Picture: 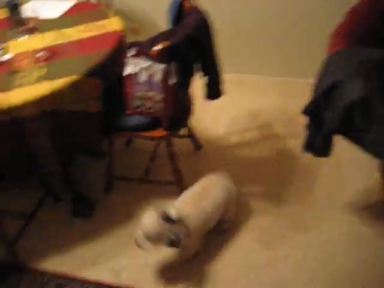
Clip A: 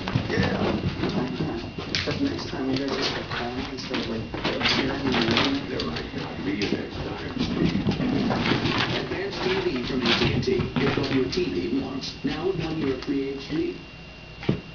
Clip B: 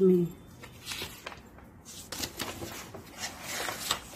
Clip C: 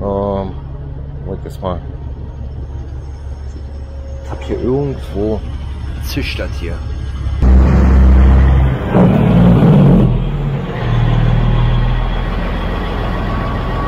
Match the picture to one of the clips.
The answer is A